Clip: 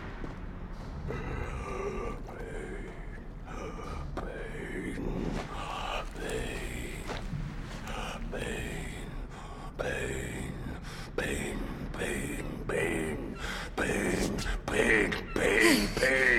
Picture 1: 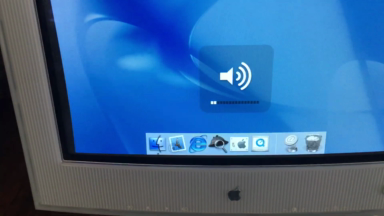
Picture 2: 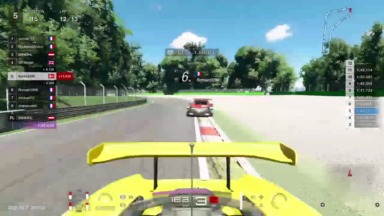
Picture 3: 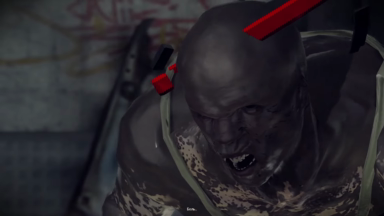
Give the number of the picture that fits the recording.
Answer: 3